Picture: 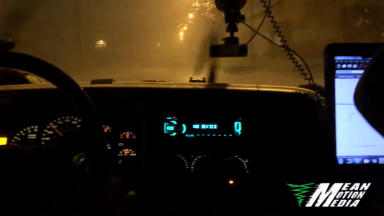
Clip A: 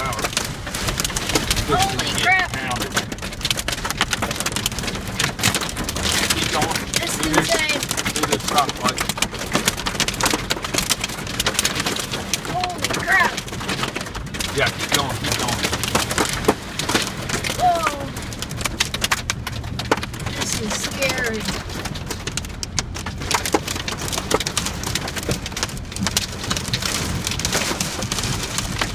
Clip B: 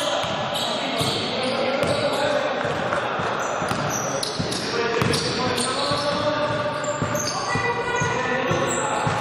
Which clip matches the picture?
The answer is A